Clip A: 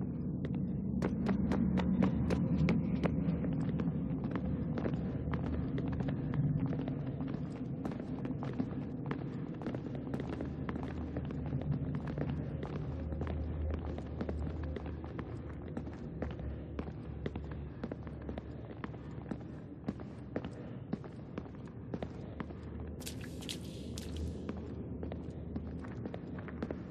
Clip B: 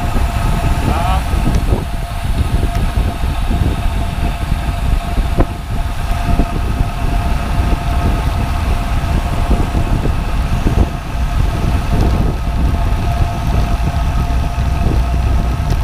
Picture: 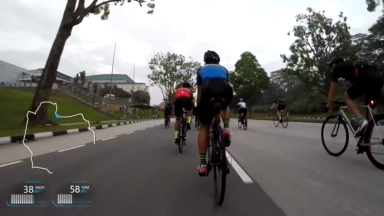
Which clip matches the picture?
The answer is B